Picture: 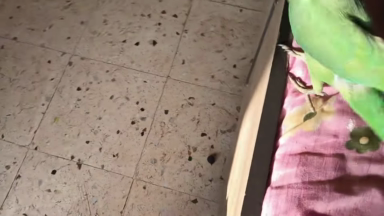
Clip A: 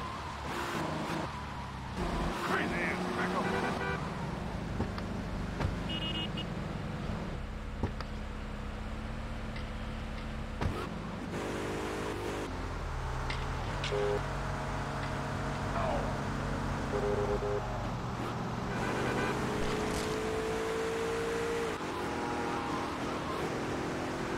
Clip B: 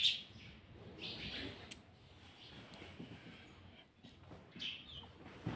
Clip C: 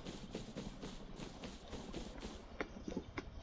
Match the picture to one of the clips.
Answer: B